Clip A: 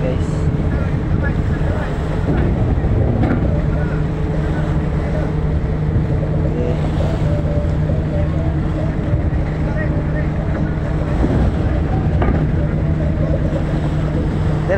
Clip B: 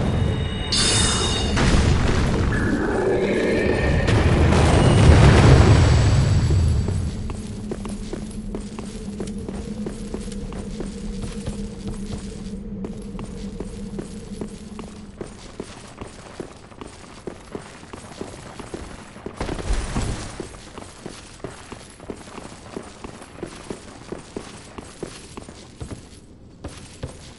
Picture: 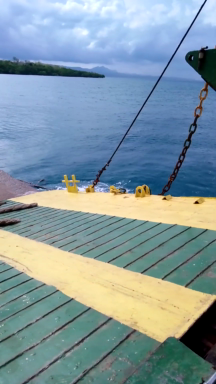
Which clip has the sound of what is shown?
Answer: A